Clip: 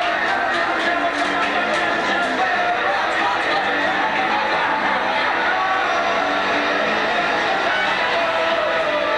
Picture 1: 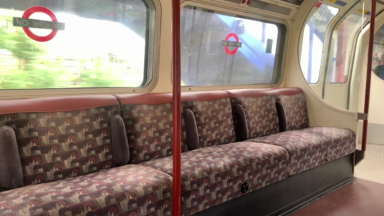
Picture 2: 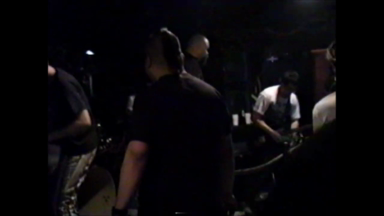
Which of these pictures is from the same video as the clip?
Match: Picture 2